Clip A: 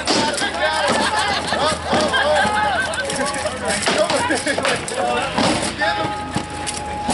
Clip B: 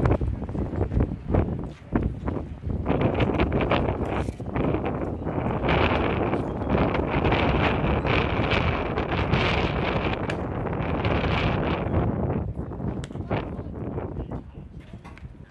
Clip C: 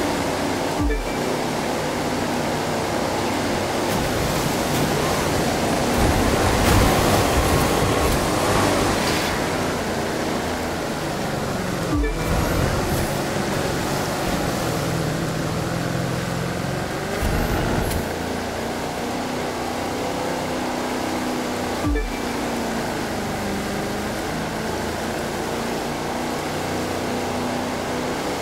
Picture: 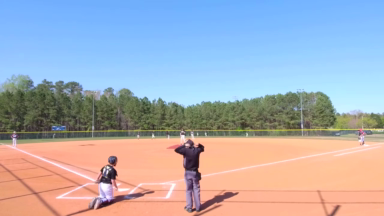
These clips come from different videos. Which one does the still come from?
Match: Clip B